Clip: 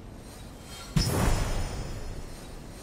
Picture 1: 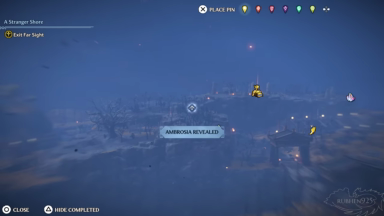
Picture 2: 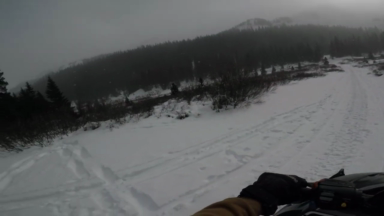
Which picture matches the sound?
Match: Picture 1